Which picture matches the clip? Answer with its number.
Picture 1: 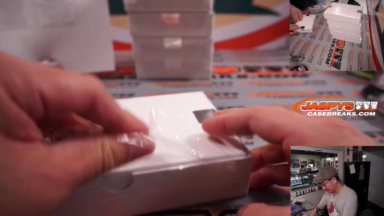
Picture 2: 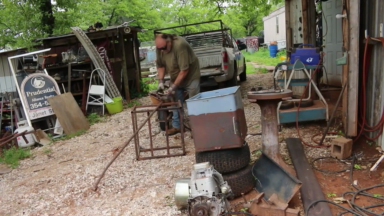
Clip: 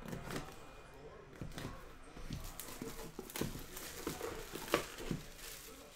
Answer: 1